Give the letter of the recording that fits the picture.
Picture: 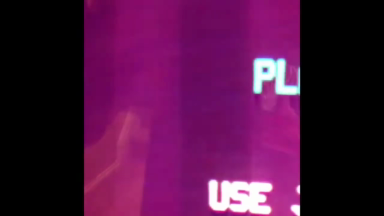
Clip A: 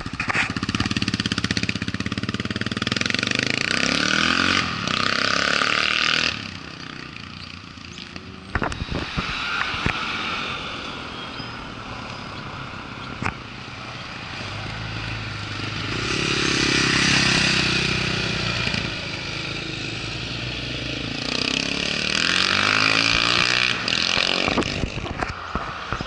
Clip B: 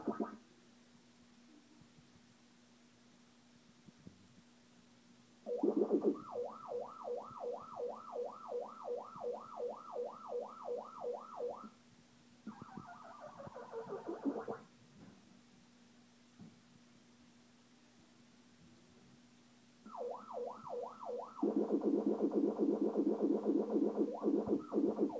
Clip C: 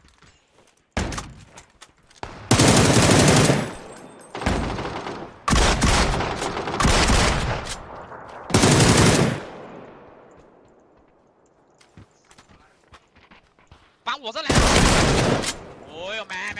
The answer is B